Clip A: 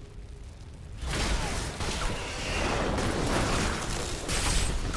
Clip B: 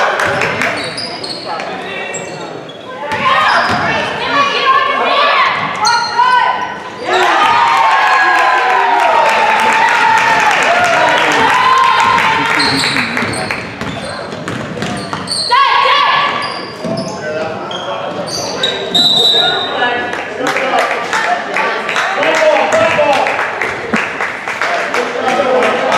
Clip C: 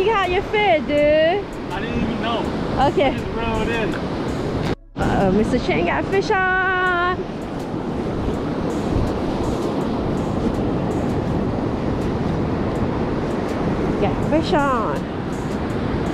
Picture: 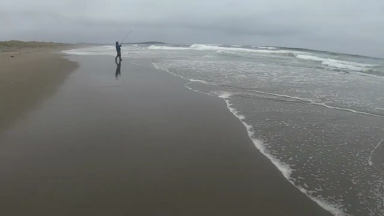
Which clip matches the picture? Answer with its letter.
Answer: C